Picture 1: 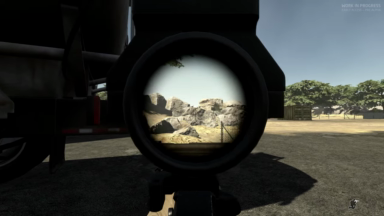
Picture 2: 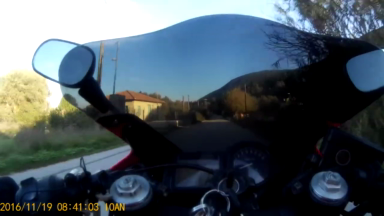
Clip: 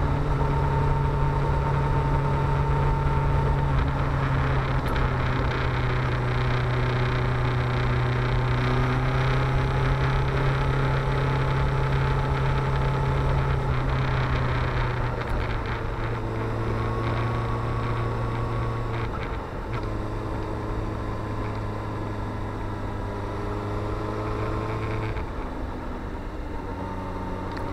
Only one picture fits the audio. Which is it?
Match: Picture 2